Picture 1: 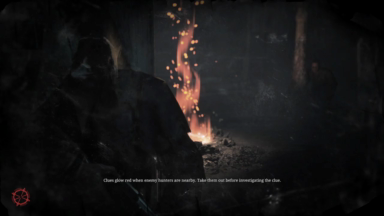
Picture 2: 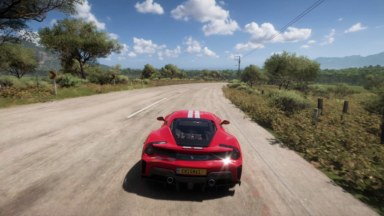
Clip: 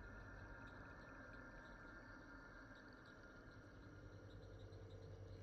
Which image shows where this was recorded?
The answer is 1